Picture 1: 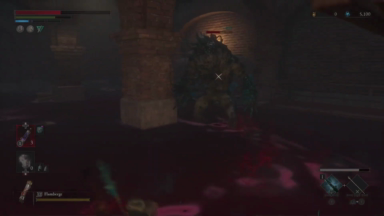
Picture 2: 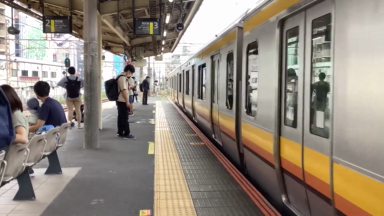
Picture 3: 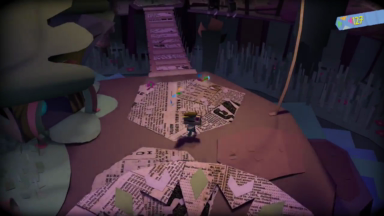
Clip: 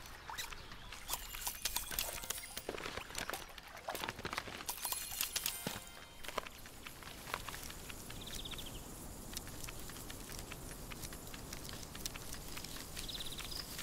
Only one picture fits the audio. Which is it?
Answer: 3